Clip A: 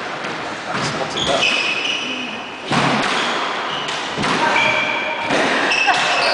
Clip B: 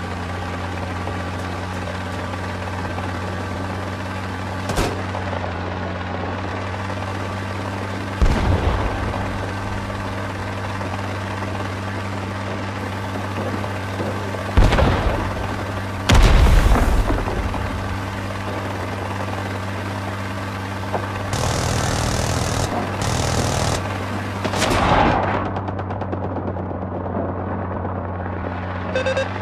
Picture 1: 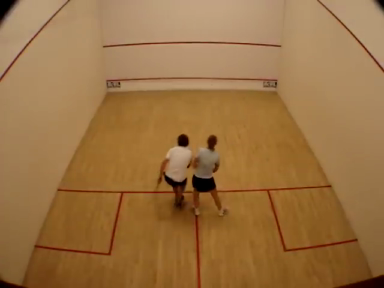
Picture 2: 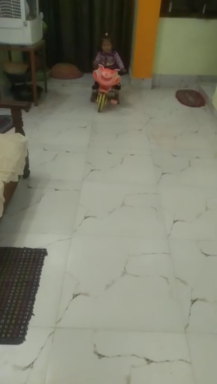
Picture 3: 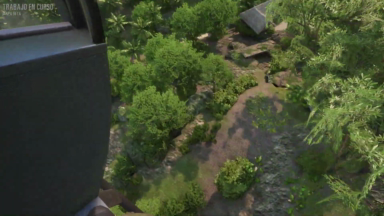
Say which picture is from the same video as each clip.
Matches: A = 1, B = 3